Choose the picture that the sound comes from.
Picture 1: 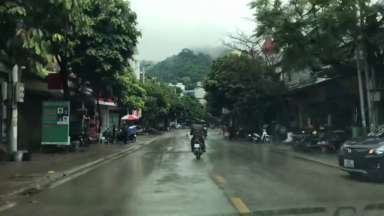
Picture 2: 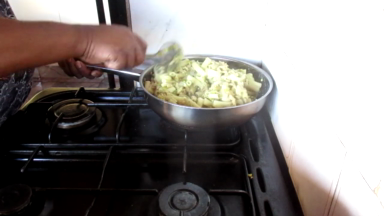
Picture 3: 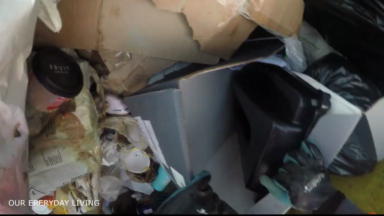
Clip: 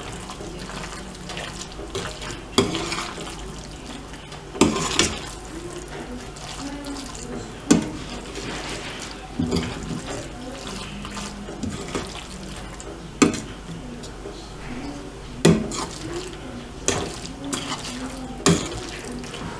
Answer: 2